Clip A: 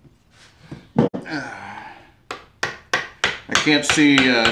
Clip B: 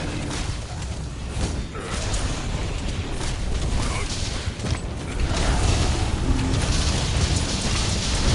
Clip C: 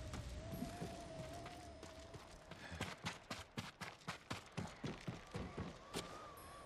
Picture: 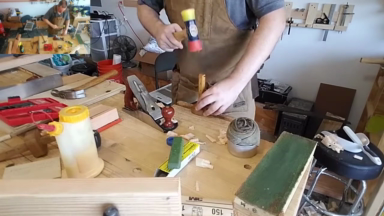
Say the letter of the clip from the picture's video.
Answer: A